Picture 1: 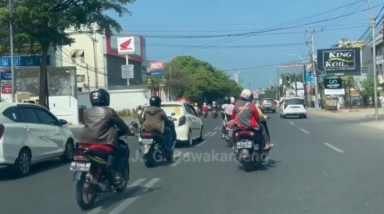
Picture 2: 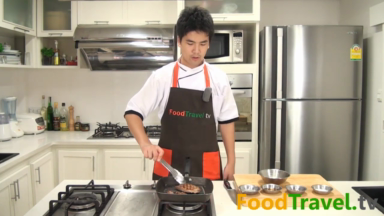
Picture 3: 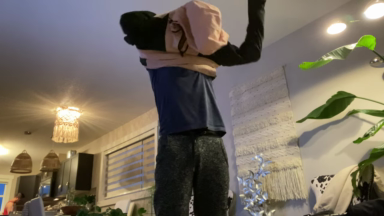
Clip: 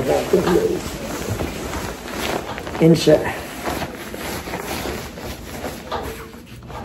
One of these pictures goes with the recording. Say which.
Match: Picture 3